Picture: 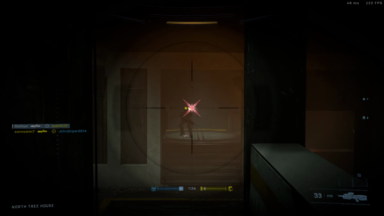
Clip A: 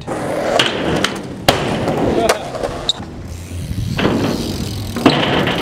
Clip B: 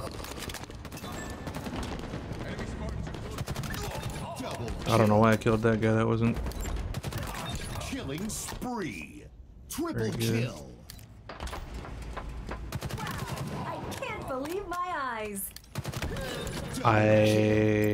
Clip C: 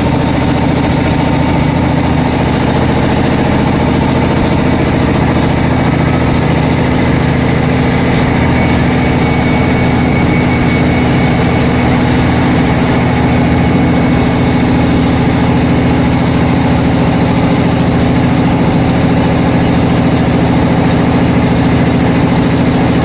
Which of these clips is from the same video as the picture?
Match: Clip B